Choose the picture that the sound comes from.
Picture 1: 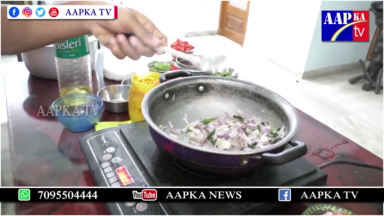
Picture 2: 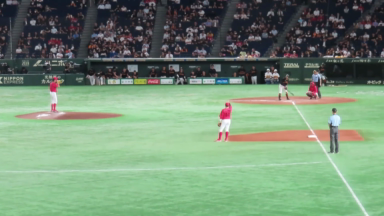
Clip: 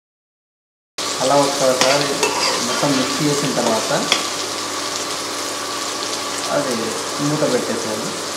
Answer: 1